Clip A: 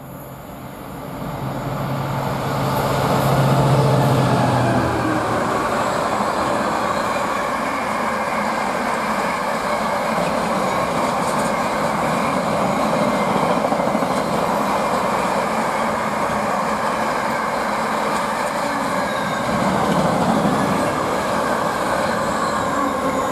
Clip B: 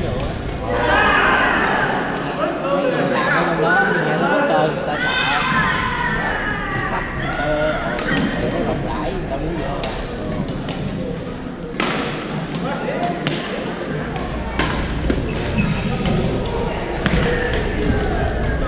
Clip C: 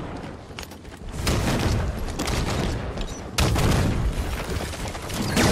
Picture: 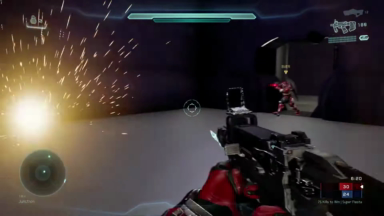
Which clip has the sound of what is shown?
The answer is C